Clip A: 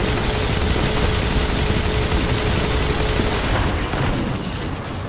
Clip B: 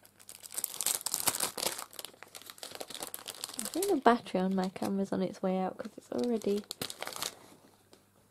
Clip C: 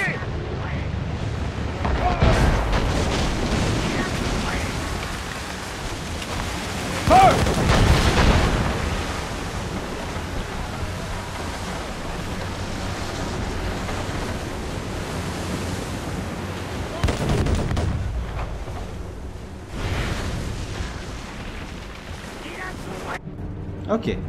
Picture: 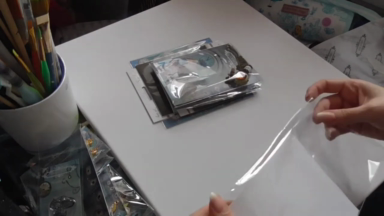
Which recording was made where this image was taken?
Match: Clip B